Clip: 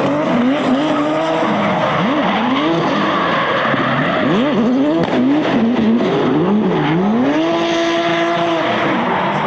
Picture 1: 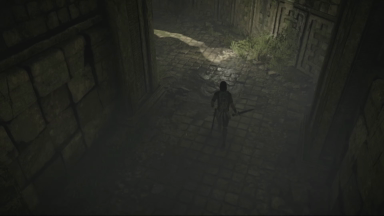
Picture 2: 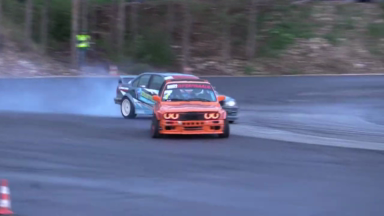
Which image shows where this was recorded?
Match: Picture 2